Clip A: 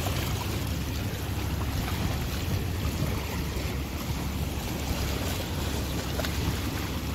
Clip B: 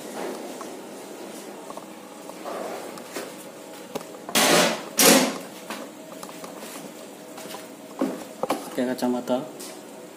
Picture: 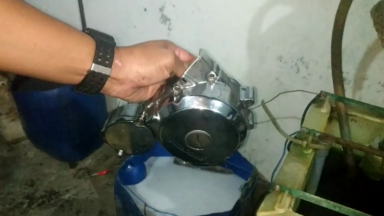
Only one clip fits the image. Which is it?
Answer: B